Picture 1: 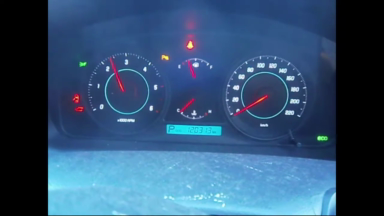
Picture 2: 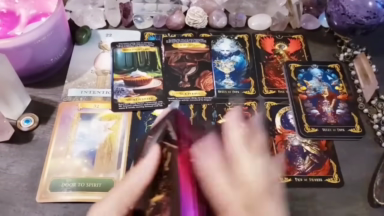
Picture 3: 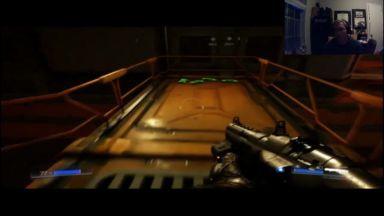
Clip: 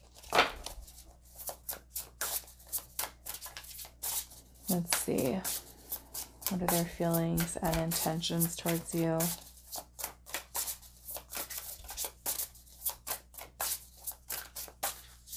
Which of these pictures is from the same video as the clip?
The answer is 2